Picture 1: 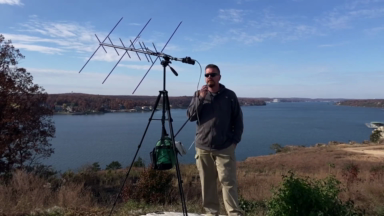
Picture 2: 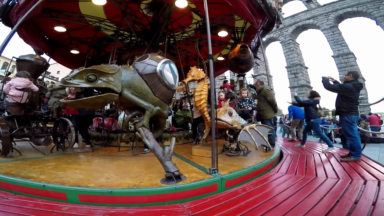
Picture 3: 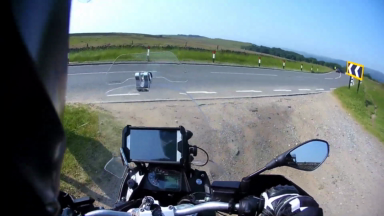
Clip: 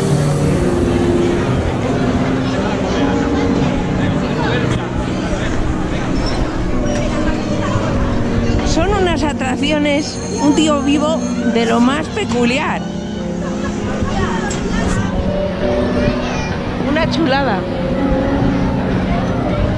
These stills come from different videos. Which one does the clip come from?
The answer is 2